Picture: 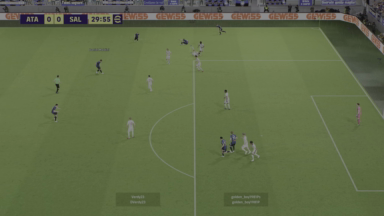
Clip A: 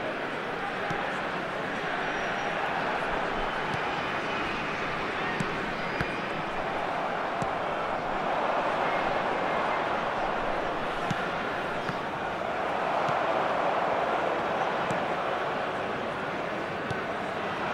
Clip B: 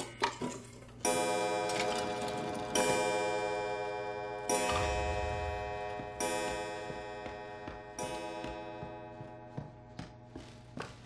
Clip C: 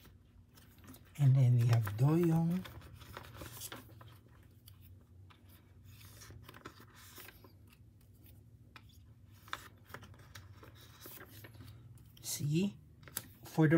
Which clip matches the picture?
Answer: A